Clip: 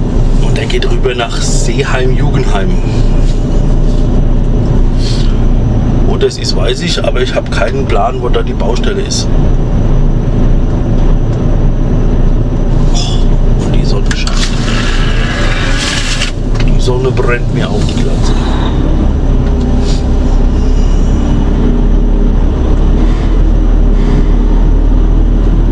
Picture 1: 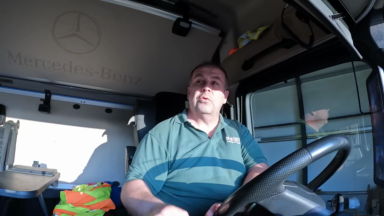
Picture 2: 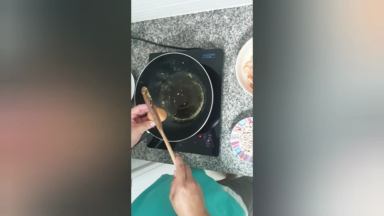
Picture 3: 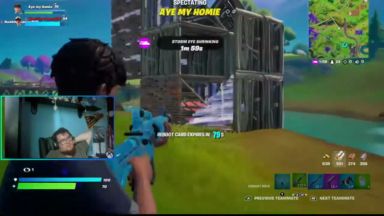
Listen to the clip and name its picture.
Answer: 1